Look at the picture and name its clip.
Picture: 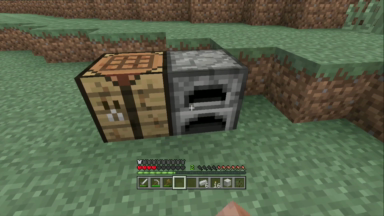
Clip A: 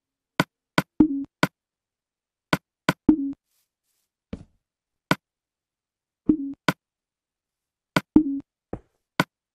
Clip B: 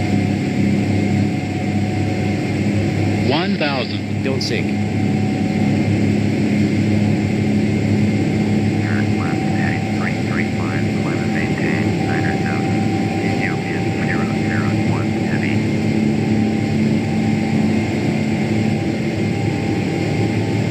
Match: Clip A